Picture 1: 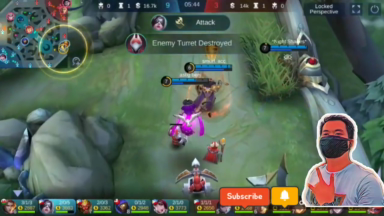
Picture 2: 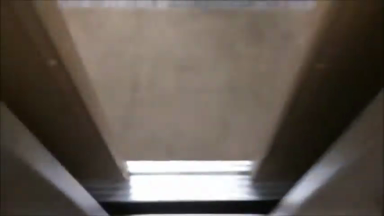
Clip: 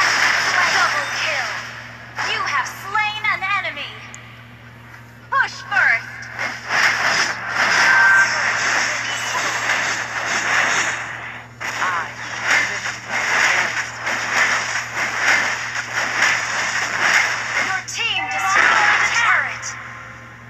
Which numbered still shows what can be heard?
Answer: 1